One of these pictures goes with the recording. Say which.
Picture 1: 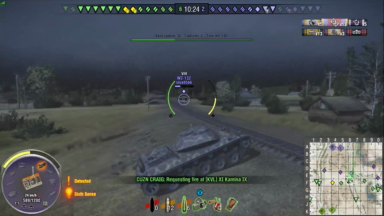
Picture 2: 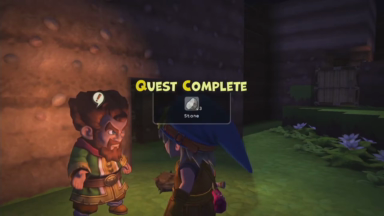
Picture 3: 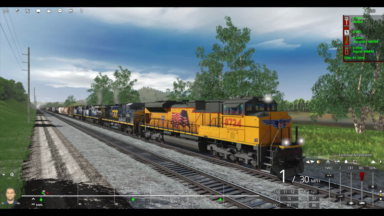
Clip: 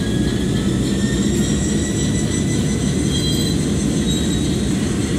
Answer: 3